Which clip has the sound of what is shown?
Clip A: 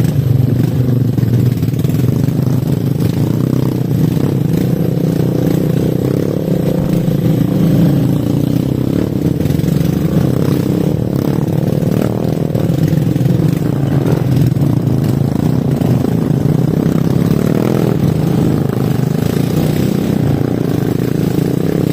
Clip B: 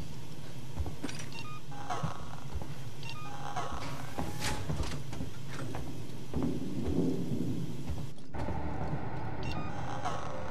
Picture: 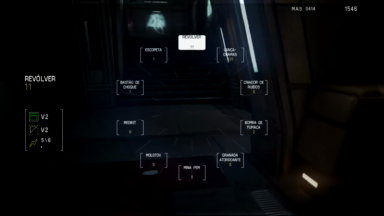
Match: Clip B